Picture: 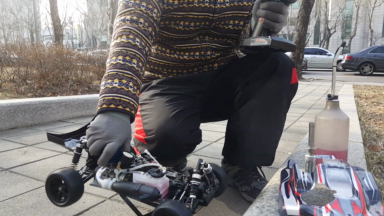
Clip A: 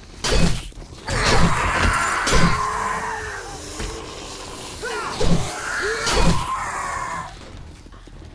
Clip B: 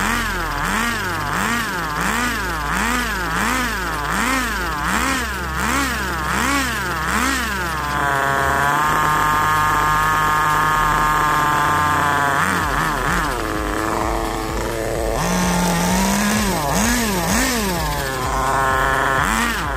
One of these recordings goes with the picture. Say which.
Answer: B